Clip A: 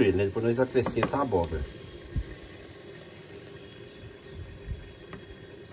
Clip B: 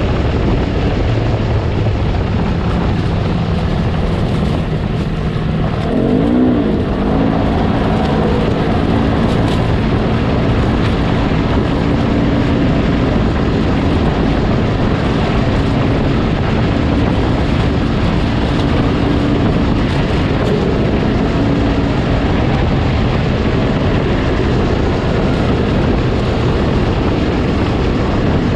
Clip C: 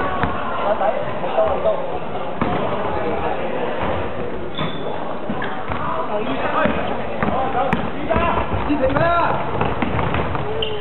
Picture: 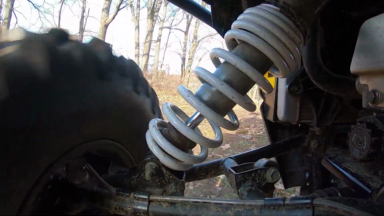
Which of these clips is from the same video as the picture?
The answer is B